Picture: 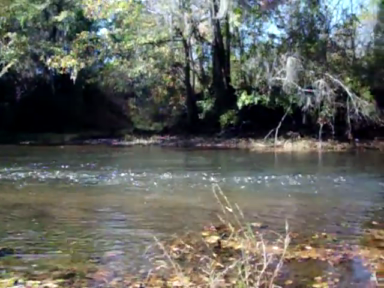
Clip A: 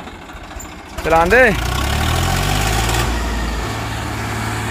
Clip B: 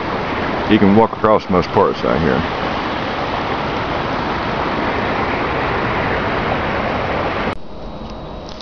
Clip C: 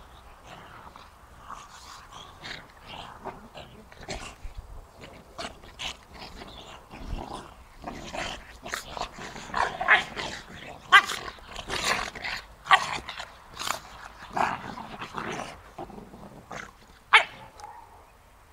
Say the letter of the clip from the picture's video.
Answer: B